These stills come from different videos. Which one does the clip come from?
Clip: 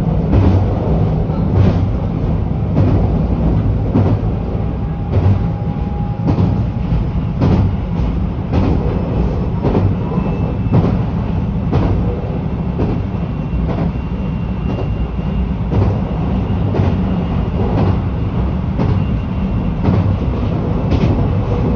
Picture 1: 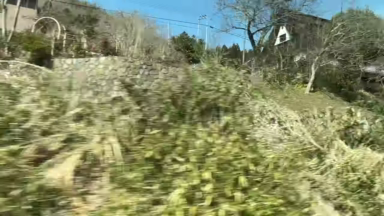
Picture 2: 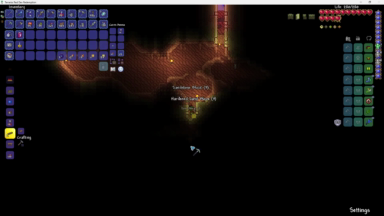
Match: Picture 1